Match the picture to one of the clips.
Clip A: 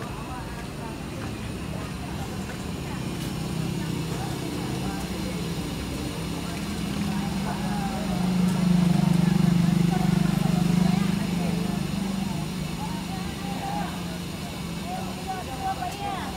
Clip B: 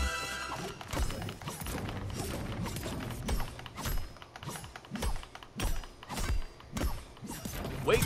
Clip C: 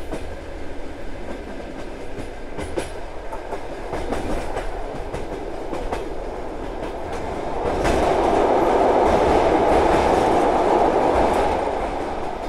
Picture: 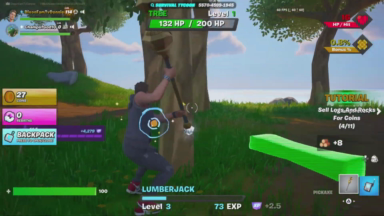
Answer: B